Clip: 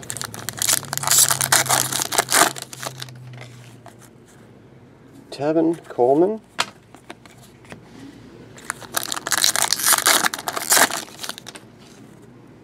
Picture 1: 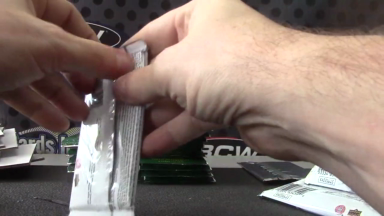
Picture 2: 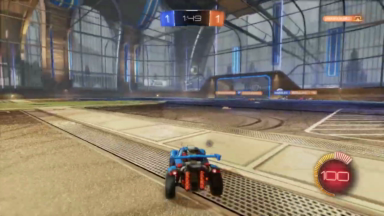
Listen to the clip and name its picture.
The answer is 1